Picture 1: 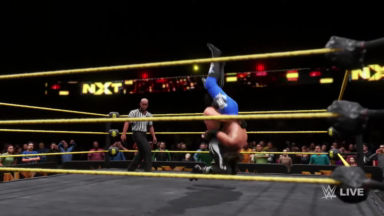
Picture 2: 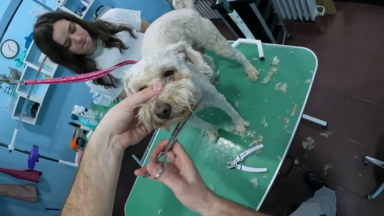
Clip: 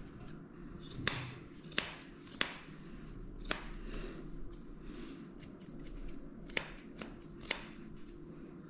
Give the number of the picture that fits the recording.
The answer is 2